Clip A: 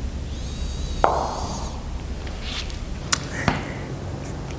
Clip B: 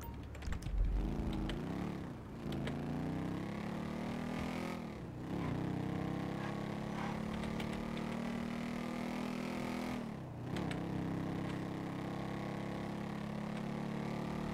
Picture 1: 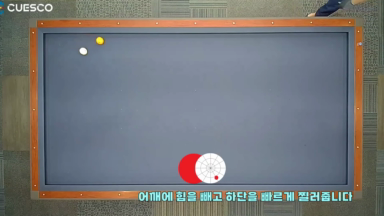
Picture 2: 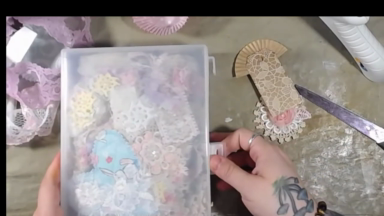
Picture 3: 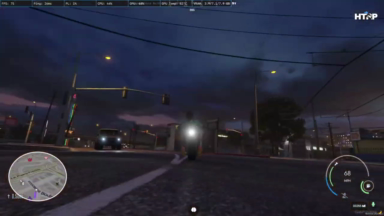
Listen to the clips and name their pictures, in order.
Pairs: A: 1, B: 3